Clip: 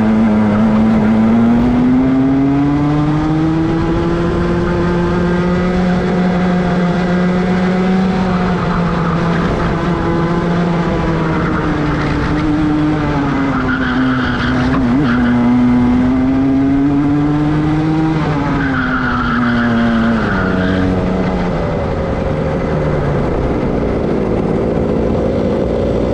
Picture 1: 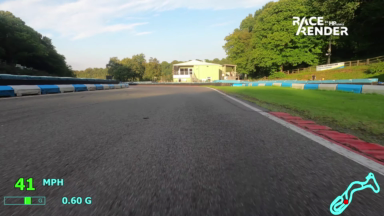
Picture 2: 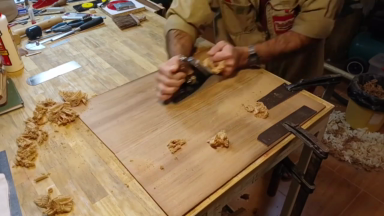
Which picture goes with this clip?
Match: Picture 1